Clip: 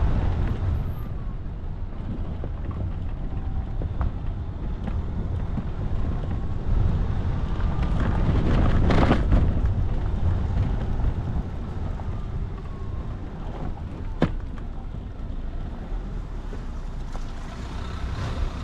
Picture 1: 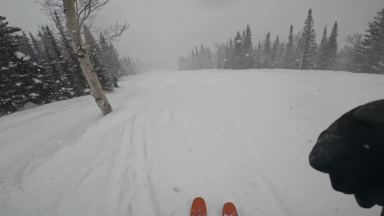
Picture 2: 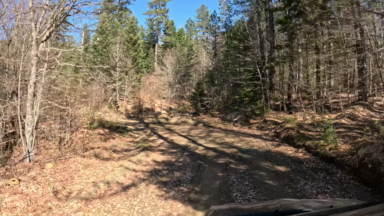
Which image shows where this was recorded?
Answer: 2